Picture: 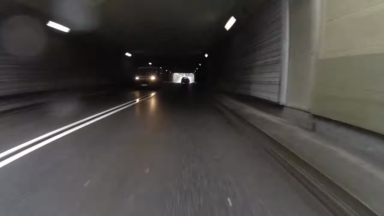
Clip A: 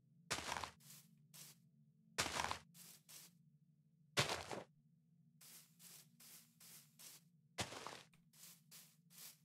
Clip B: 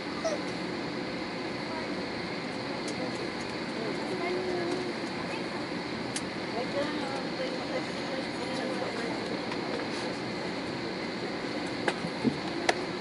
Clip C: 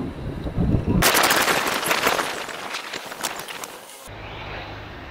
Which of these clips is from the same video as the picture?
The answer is C